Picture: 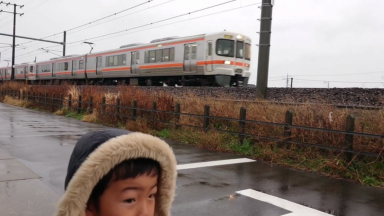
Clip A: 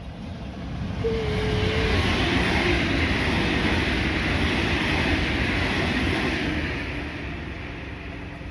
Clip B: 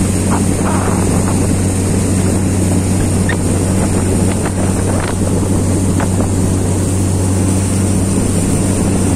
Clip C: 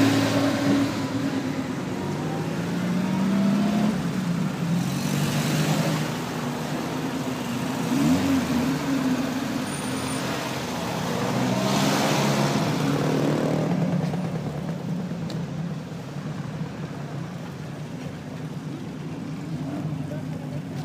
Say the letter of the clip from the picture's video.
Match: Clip A